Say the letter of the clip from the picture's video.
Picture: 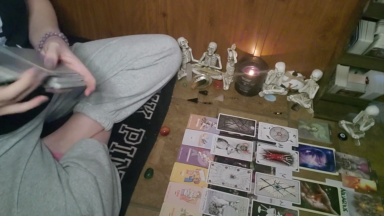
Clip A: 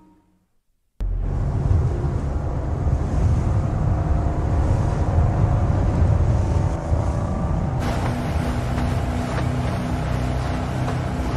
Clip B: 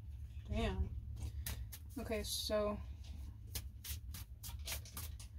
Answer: B